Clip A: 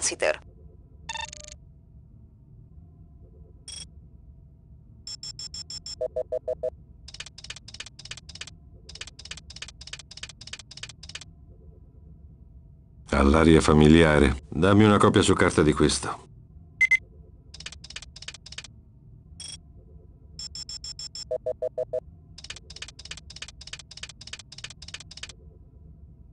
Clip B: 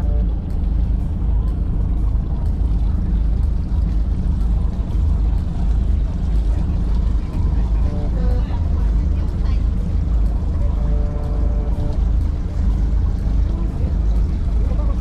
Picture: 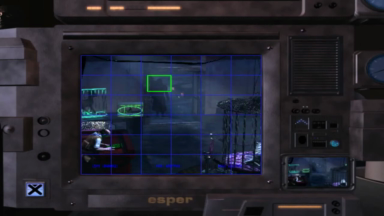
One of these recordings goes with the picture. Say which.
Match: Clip A